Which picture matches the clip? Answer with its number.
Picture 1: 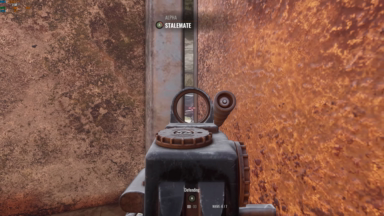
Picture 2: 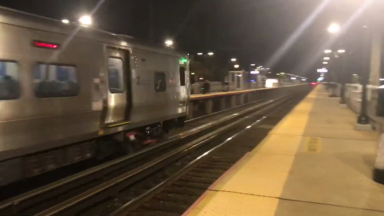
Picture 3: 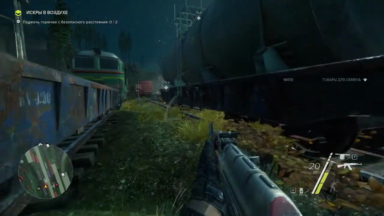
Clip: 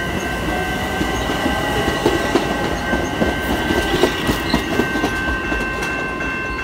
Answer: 2